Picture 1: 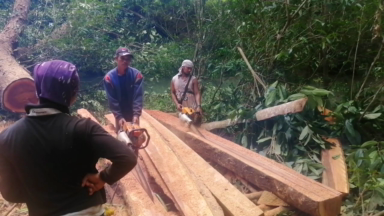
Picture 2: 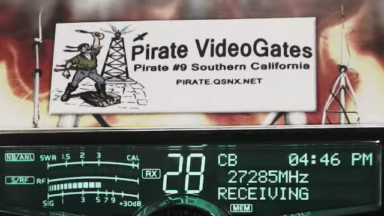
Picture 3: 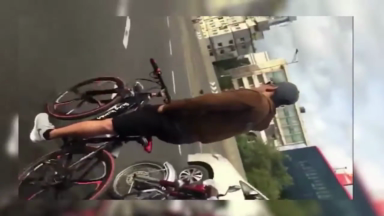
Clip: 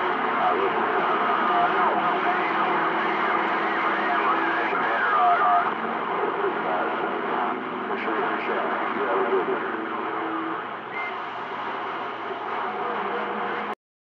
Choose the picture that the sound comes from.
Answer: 2